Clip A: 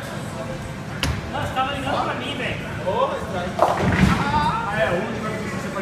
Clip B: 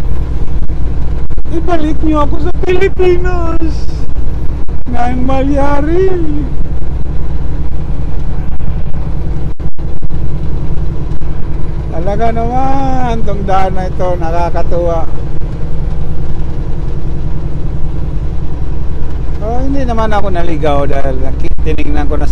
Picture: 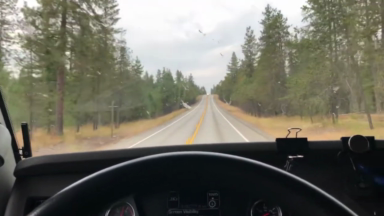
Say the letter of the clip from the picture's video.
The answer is B